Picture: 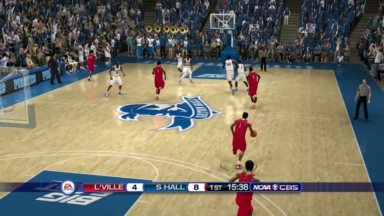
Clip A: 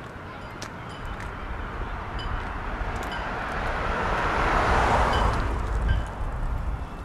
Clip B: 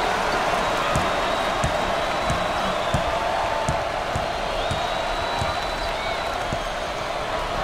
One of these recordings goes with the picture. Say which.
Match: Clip B